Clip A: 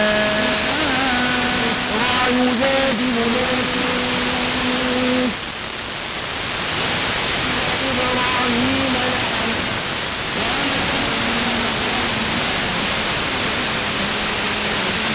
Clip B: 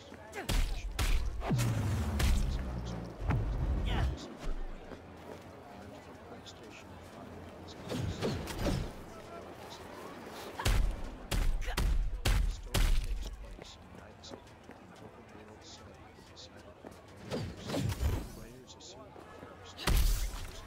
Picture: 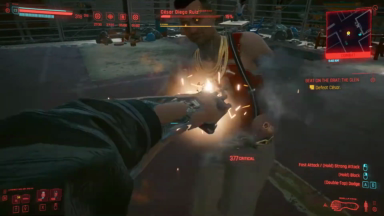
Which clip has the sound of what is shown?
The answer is B